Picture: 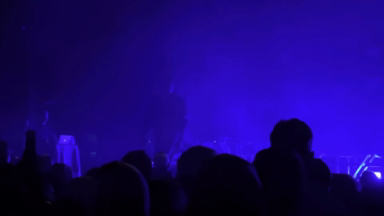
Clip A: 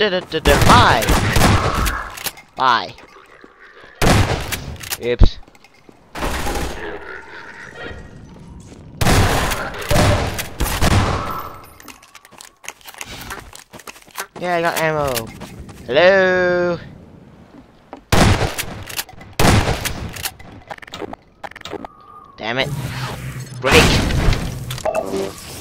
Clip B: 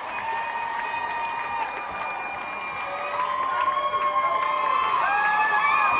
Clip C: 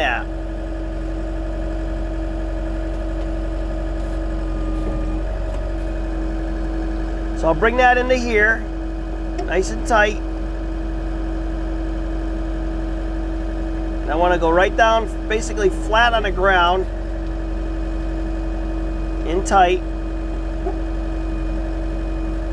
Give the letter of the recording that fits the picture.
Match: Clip B